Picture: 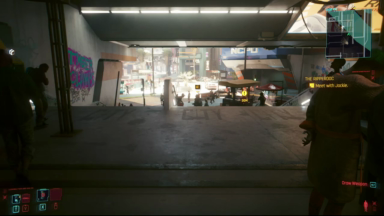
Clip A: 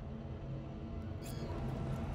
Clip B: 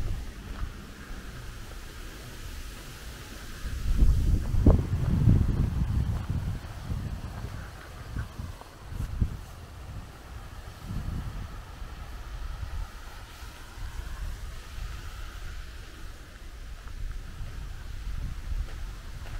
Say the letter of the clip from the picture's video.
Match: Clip A